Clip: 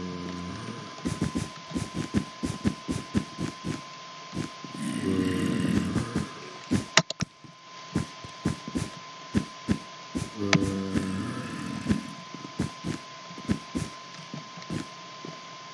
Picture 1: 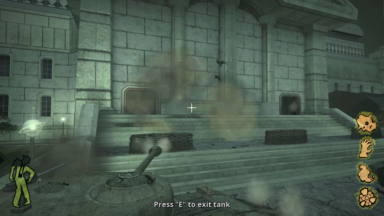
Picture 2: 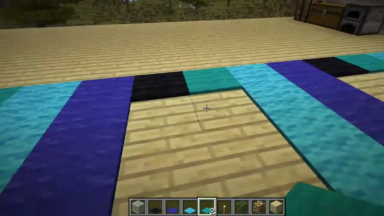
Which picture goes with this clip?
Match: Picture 2